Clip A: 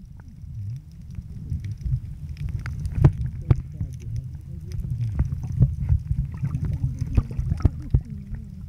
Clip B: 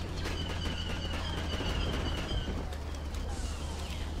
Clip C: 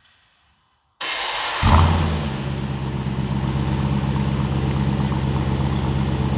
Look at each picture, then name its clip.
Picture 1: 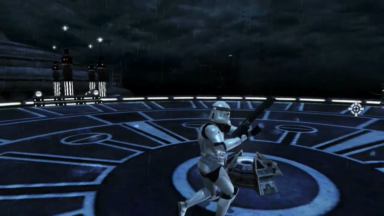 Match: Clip B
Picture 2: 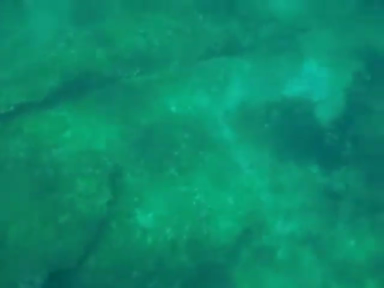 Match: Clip A